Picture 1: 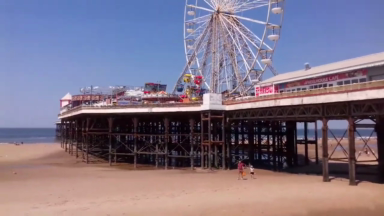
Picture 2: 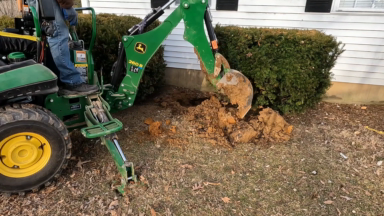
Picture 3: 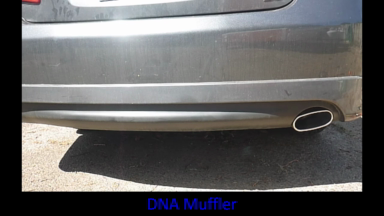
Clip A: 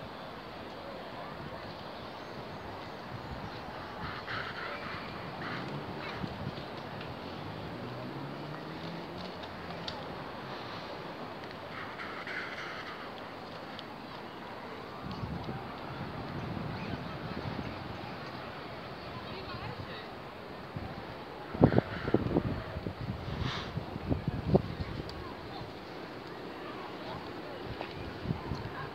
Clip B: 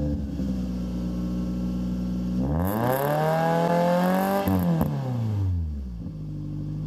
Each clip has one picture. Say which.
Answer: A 1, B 3